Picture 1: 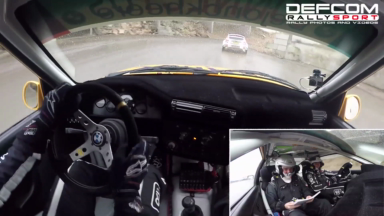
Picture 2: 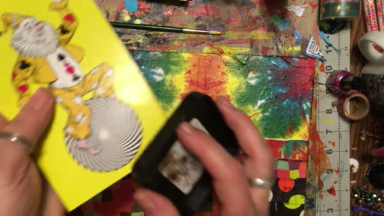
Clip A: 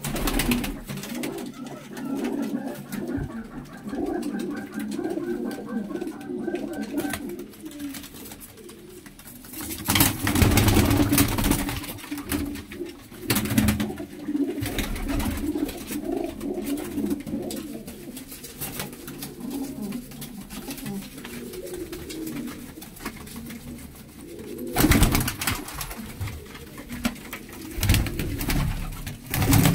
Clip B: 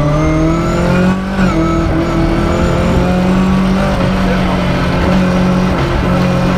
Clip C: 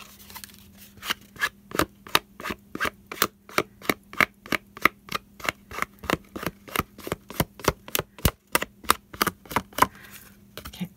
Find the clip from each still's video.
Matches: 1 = B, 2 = C